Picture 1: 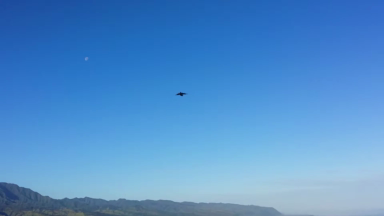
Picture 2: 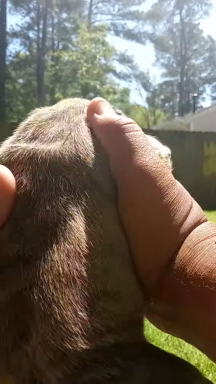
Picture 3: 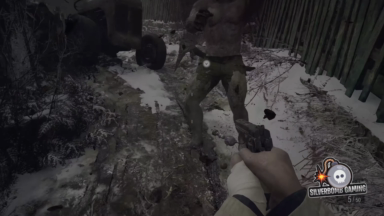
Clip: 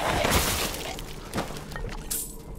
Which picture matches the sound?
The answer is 3